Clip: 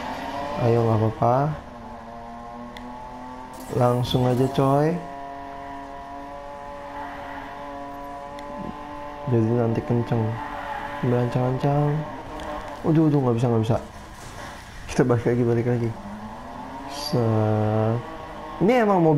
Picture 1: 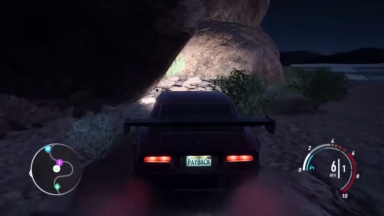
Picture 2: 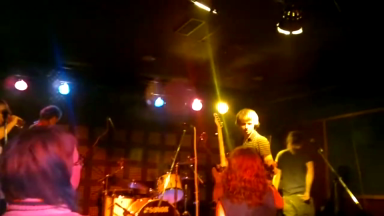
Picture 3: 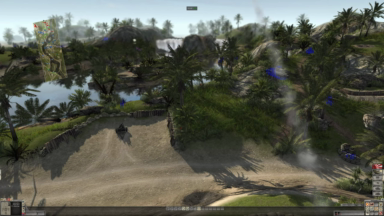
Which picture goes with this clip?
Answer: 1